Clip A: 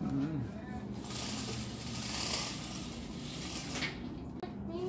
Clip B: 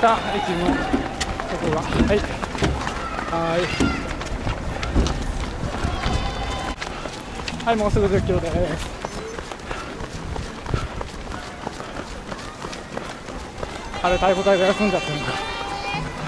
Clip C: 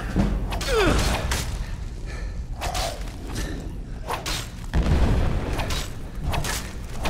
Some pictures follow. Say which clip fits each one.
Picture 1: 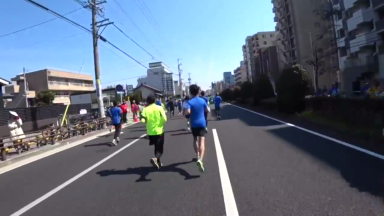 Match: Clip B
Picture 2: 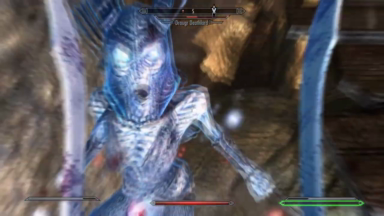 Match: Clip C